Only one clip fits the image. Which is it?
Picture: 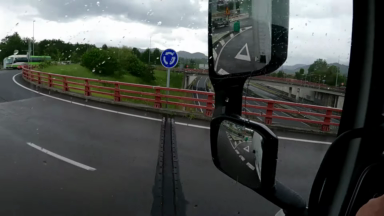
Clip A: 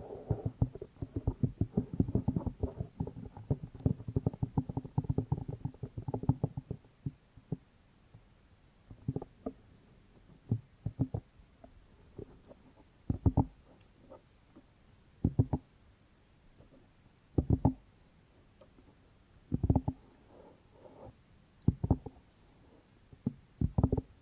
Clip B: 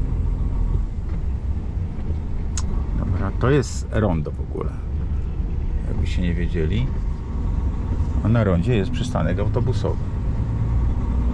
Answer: B